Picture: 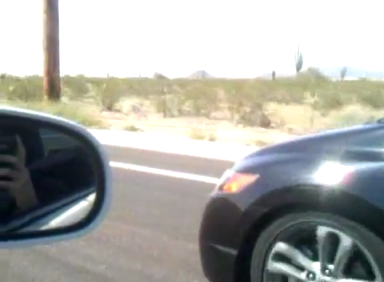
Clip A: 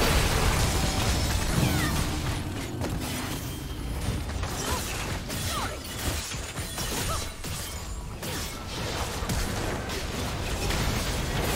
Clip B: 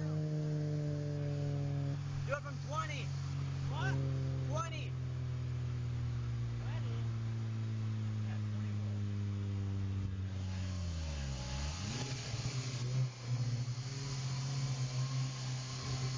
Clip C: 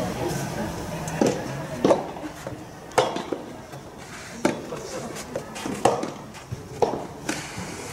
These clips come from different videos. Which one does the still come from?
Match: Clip B